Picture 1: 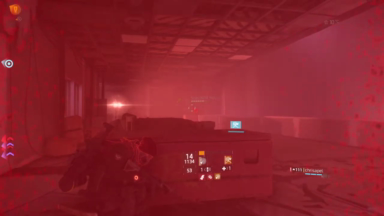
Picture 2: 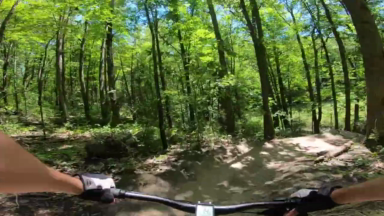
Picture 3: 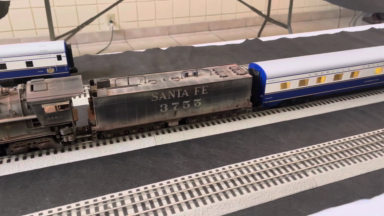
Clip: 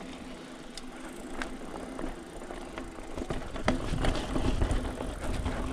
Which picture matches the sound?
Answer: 2